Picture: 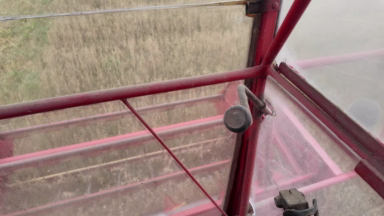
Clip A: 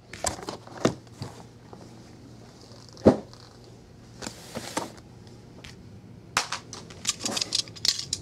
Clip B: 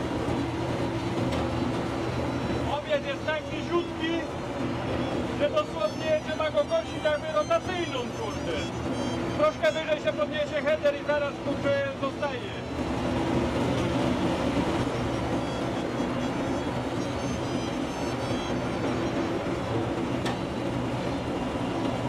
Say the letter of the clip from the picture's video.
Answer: B